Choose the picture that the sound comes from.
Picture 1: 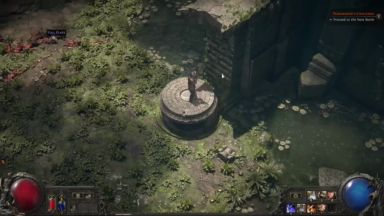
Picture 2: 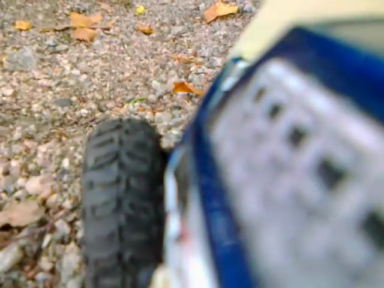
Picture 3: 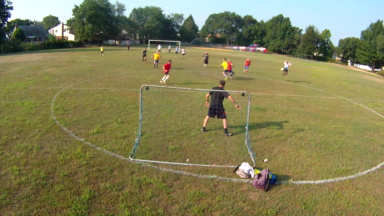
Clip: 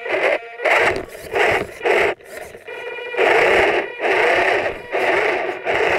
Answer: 2